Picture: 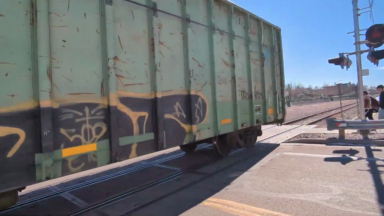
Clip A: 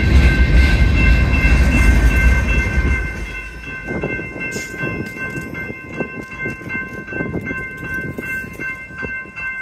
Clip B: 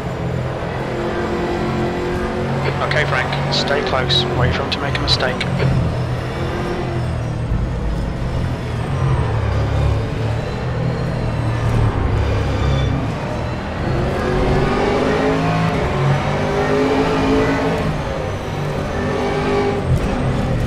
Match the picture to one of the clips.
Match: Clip A